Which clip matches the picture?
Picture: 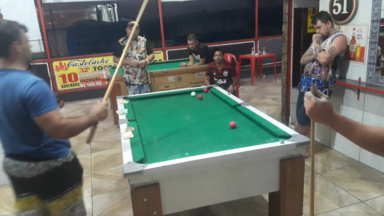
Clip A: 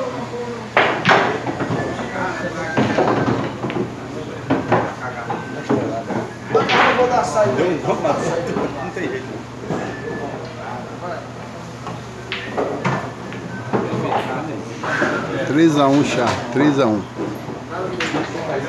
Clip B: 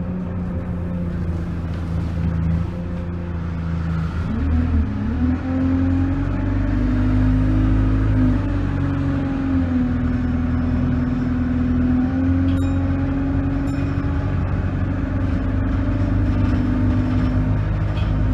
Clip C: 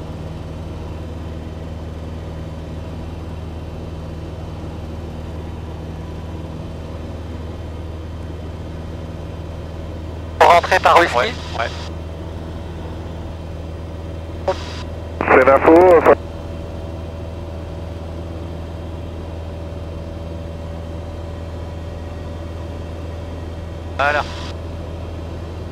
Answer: A